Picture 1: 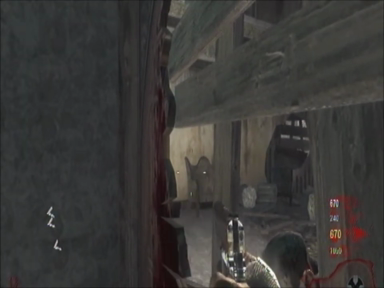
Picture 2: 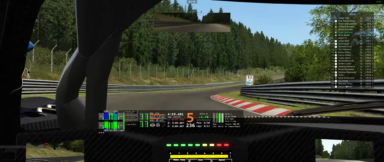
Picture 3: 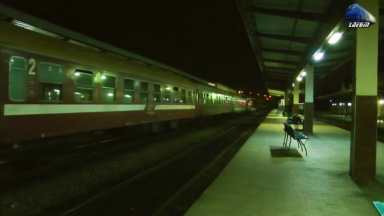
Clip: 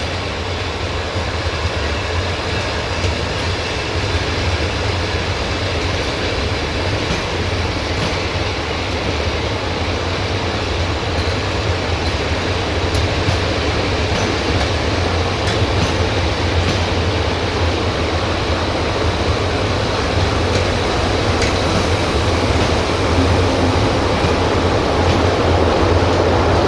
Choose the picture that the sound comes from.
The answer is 3